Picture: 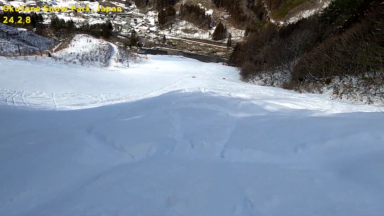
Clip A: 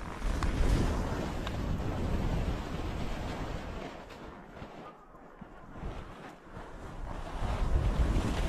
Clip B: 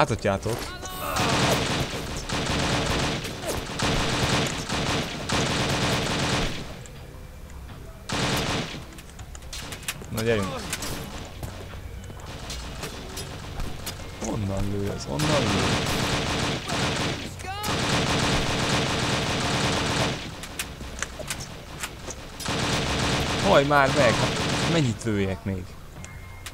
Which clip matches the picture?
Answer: A